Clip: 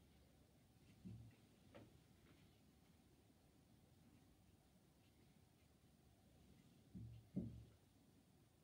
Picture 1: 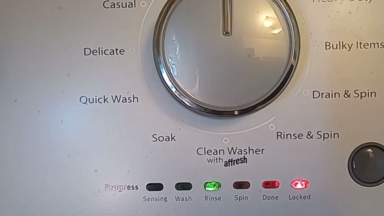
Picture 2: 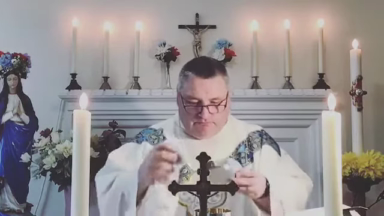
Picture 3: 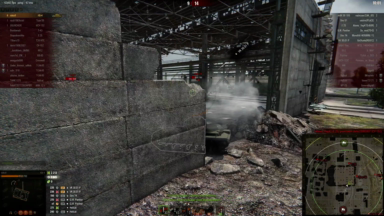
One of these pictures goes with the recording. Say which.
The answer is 2